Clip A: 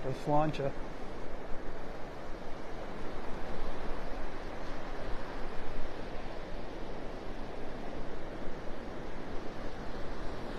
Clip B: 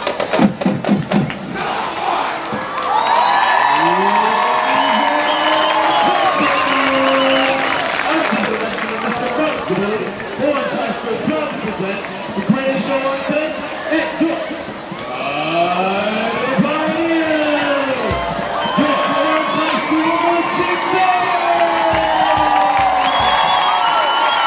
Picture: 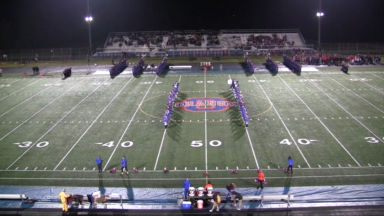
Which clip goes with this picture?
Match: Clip B